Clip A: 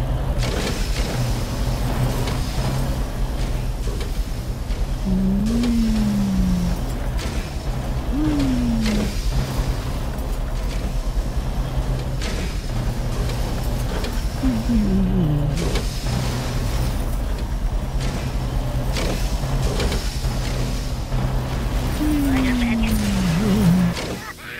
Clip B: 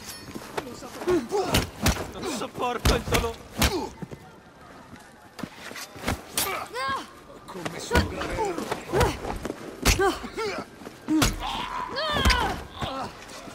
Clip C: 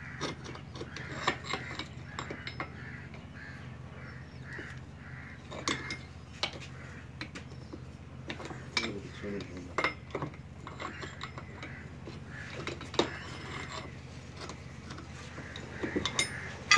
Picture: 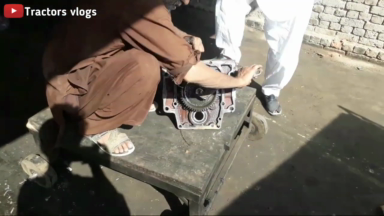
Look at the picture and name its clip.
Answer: C